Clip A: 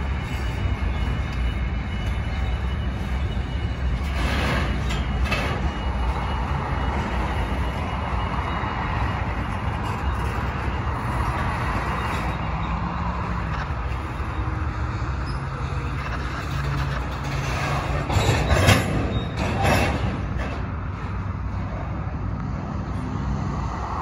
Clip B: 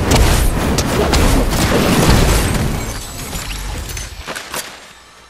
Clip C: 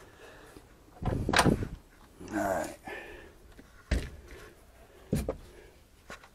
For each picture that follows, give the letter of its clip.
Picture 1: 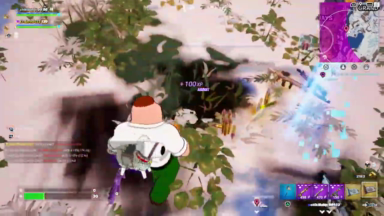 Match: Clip B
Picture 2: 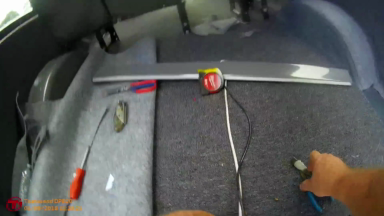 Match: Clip C